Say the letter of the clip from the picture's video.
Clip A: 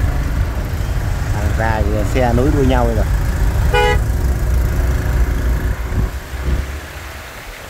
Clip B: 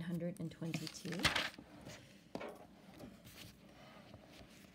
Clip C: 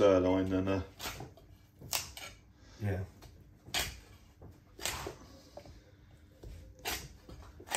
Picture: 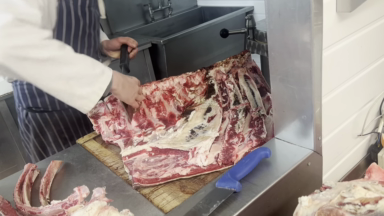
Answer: C